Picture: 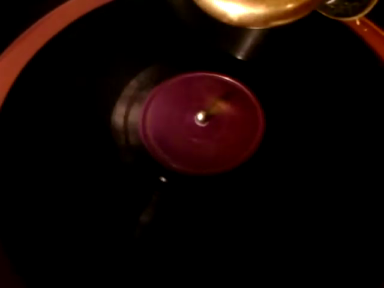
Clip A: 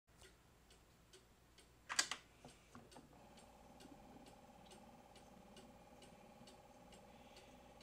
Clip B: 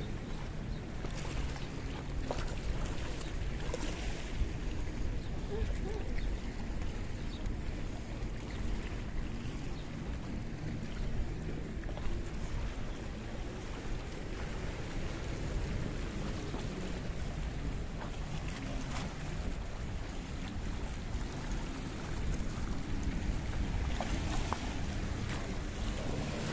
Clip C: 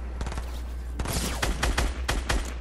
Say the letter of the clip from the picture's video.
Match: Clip A